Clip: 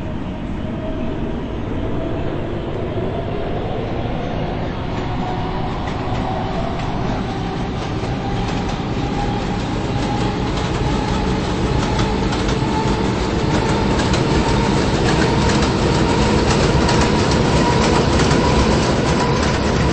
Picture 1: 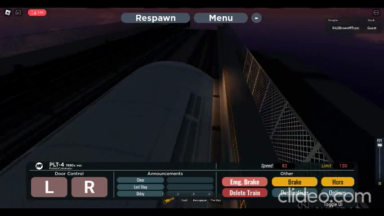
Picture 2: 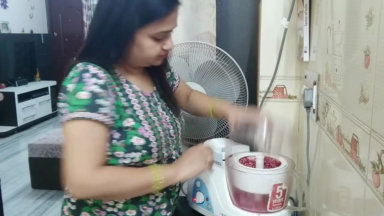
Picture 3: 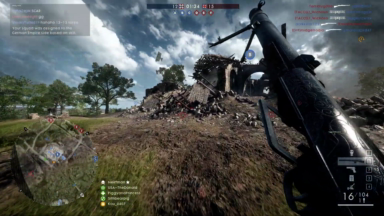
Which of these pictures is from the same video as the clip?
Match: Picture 1